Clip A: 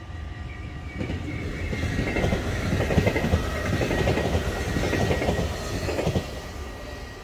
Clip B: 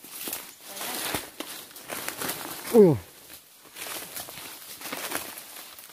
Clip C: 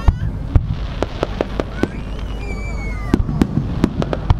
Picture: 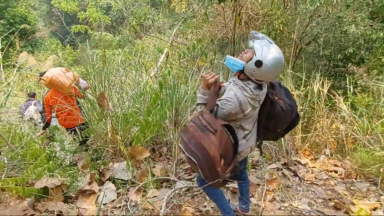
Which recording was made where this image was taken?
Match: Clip B